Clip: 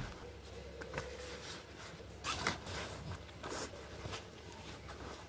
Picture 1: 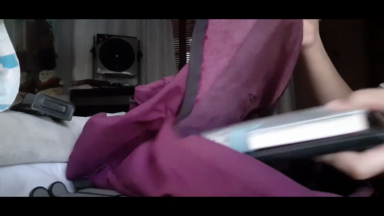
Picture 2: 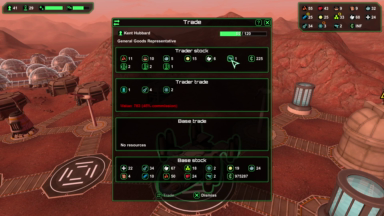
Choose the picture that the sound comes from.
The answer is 1